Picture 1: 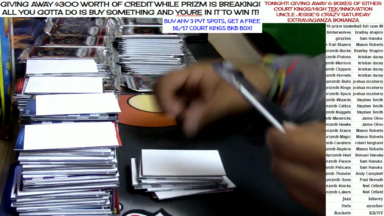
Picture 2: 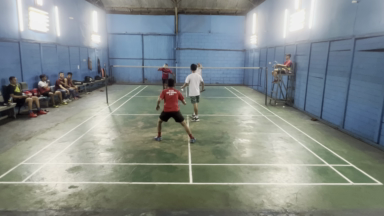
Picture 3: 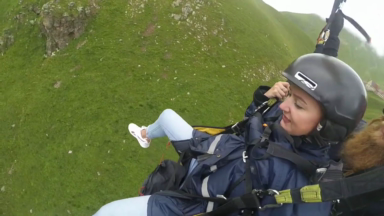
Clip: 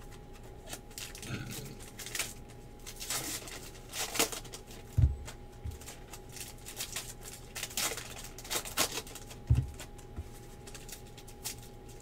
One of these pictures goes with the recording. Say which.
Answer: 1